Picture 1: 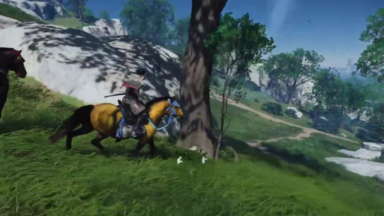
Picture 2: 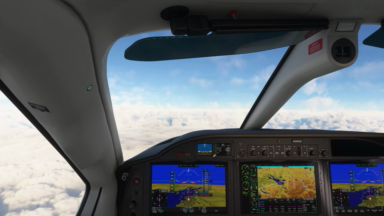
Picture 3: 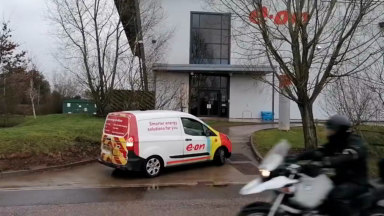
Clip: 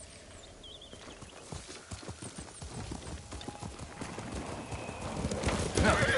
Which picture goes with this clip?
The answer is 1